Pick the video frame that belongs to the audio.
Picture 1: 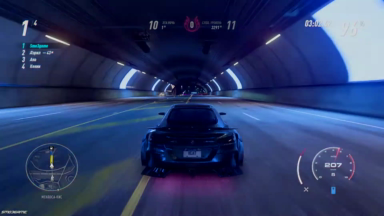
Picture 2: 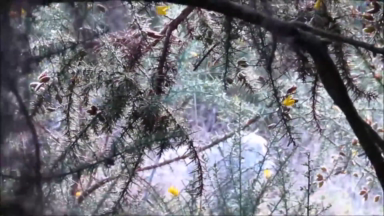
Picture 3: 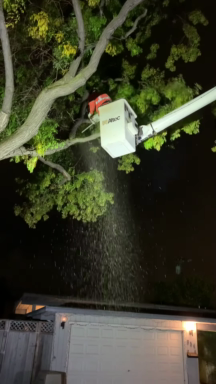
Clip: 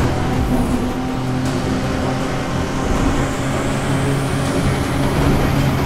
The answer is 1